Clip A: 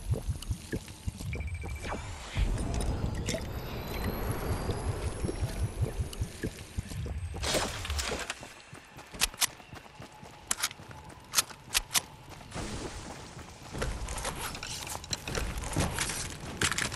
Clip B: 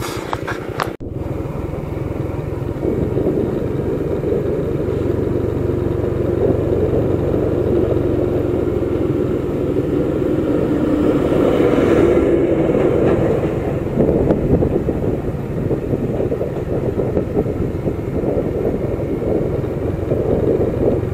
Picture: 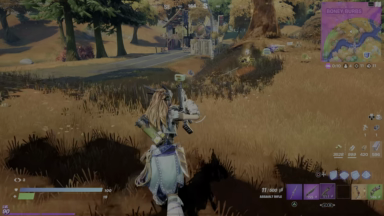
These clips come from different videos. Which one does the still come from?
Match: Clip A